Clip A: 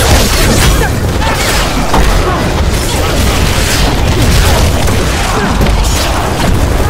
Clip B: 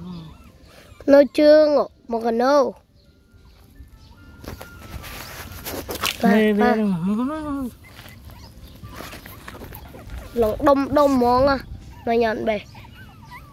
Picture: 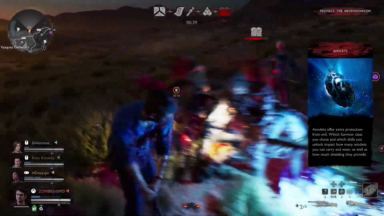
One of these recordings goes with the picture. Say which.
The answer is A